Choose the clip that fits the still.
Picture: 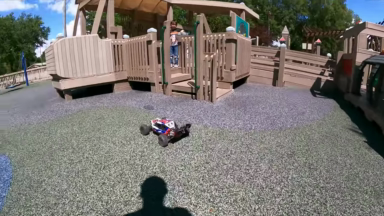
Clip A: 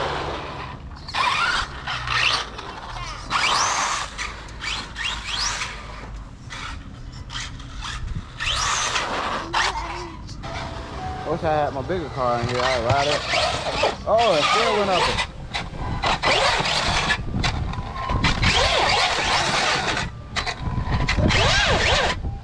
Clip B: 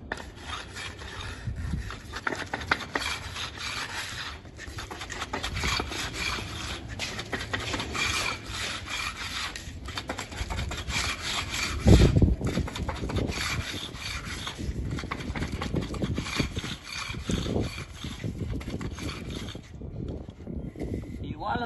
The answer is A